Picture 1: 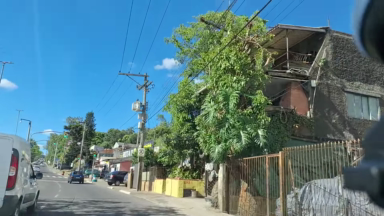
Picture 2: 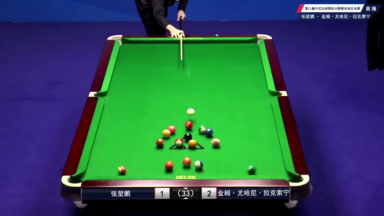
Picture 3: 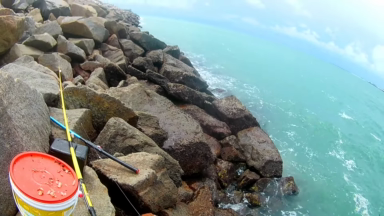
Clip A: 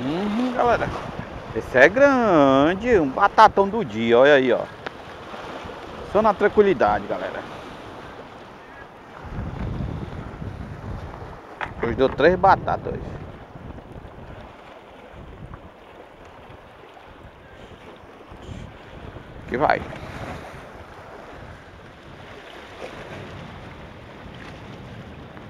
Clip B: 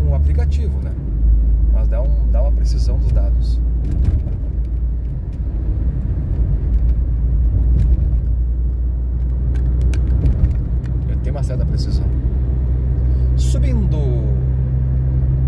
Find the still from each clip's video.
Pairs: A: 3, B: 1